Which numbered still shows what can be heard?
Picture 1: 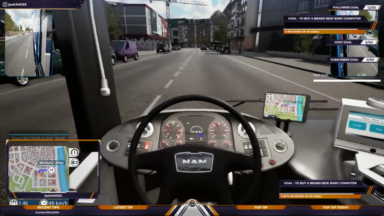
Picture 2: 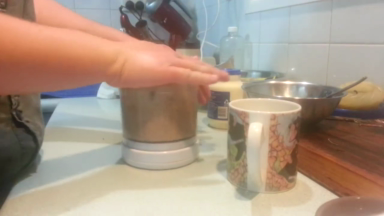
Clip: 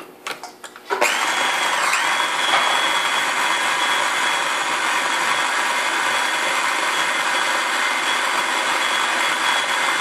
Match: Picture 2